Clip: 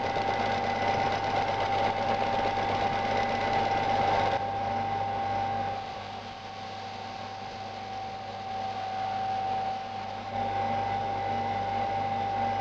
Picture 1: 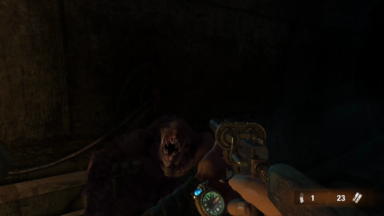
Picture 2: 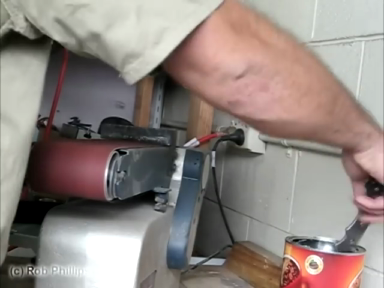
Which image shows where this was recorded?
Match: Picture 2